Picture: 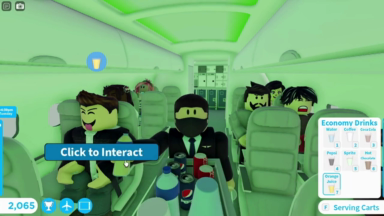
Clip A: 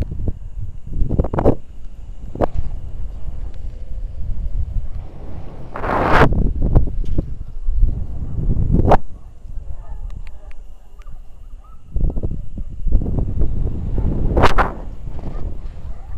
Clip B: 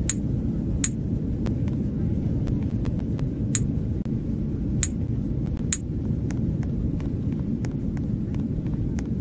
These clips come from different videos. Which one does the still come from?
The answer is B